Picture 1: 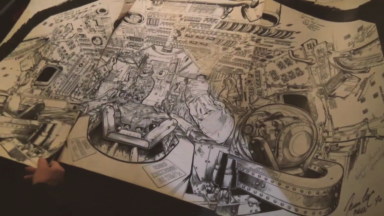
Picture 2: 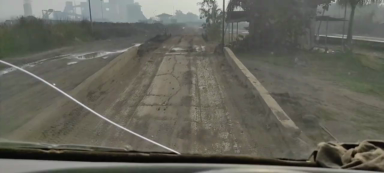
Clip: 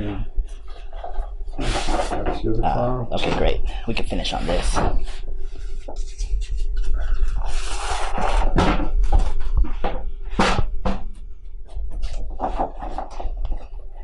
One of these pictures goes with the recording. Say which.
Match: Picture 1